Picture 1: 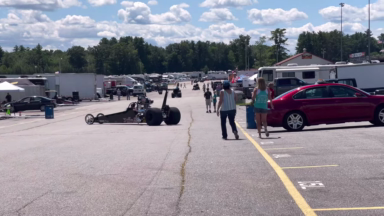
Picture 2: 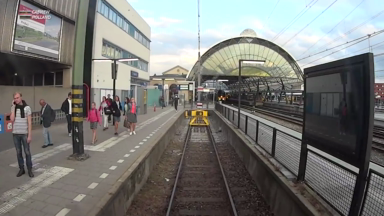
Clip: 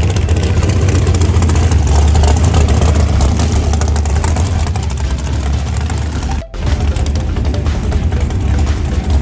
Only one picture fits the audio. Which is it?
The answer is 1